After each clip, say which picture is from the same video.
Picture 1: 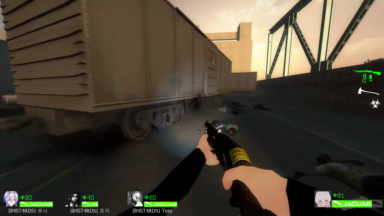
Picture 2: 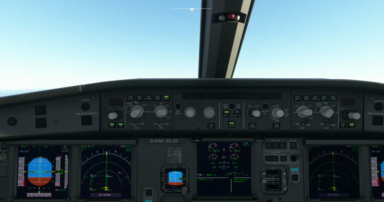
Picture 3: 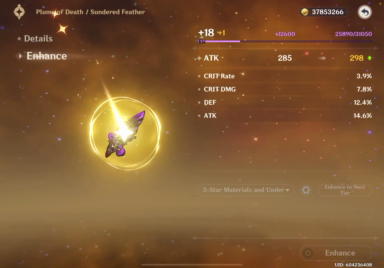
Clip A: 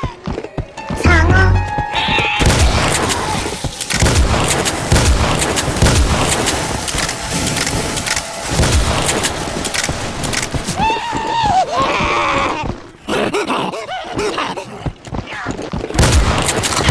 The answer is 1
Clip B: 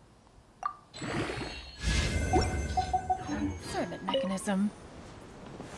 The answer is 3